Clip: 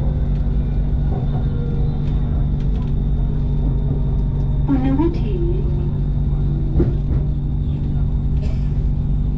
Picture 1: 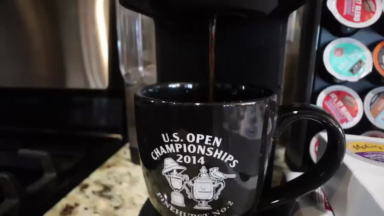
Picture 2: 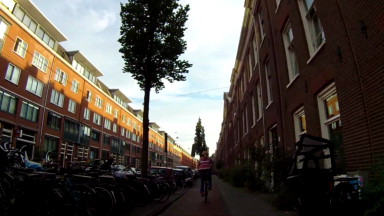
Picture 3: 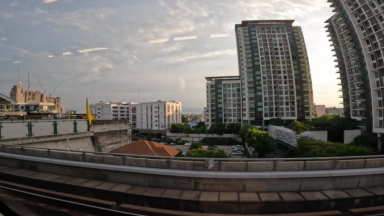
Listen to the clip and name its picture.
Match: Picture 3